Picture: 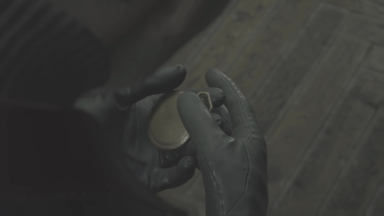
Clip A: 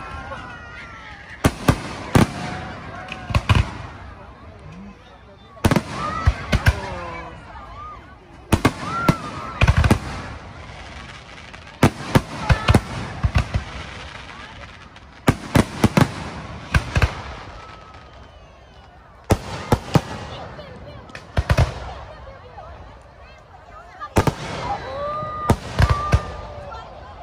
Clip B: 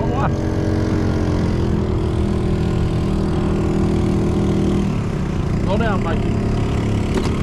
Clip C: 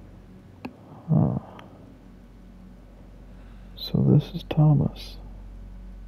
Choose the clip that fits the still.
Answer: C